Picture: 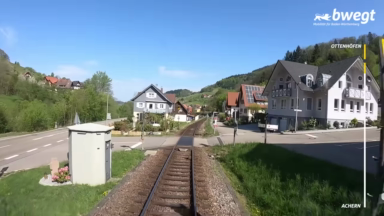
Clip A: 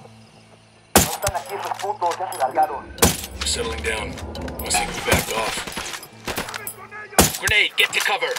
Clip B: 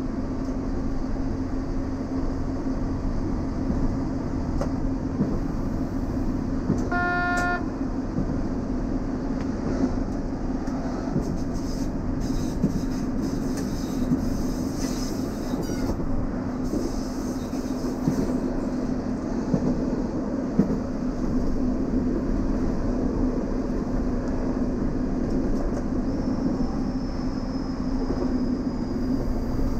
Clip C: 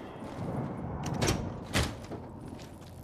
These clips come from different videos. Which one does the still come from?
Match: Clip B